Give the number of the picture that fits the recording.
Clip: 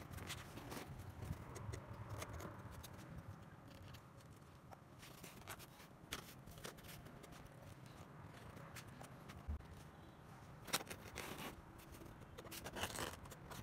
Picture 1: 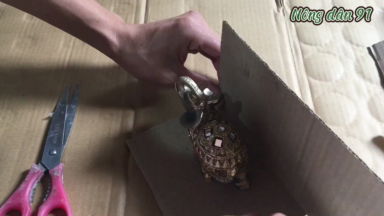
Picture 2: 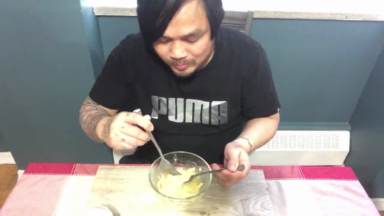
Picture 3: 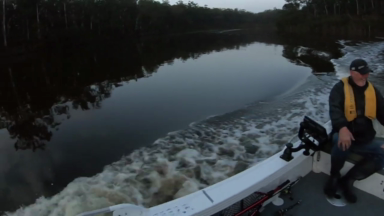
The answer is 1